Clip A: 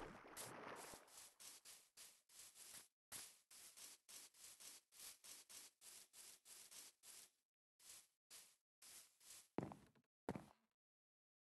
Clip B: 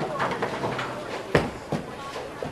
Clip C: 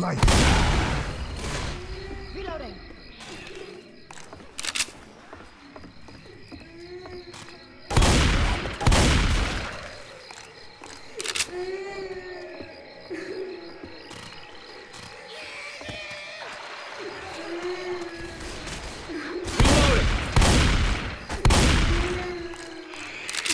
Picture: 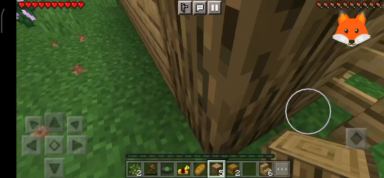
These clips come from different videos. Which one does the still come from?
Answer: A